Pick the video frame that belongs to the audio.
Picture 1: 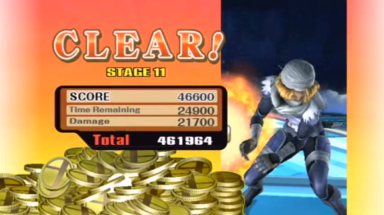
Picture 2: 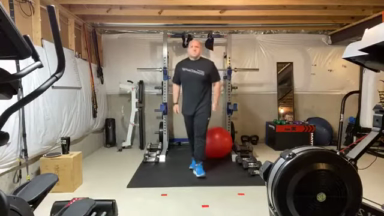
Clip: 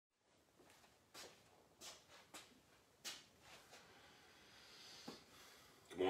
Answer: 2